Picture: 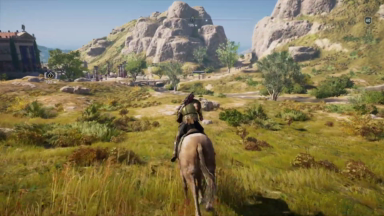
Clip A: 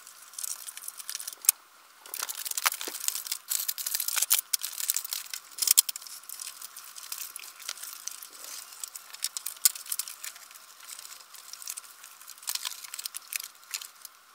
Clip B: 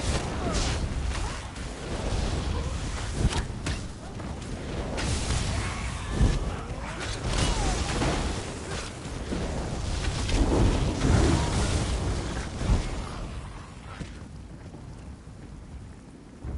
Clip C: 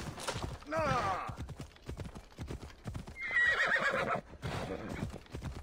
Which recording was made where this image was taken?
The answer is C